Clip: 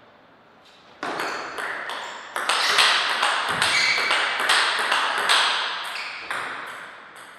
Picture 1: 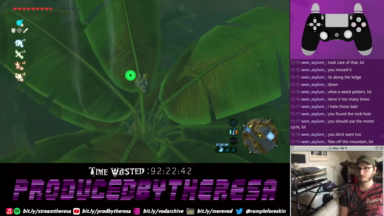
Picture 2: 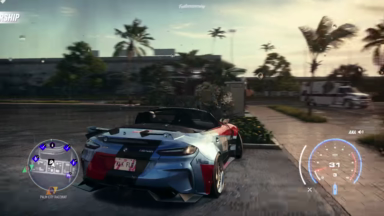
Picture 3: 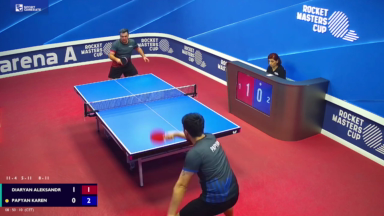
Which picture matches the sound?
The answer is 3